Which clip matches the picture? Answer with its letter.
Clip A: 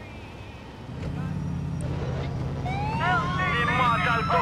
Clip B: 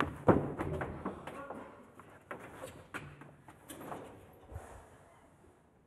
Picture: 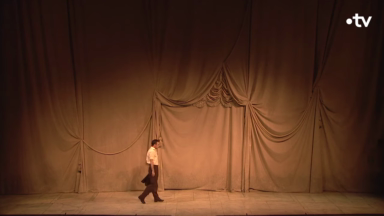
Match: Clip B